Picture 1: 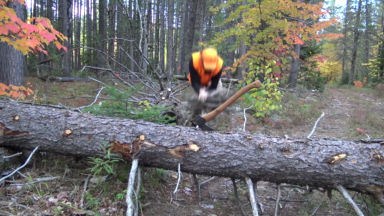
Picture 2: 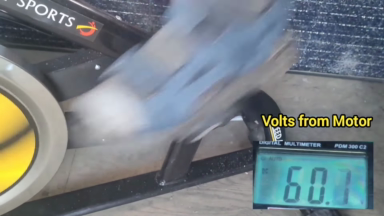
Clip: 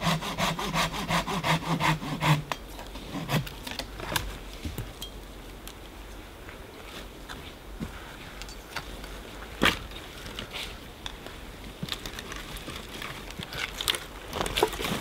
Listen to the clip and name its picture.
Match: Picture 1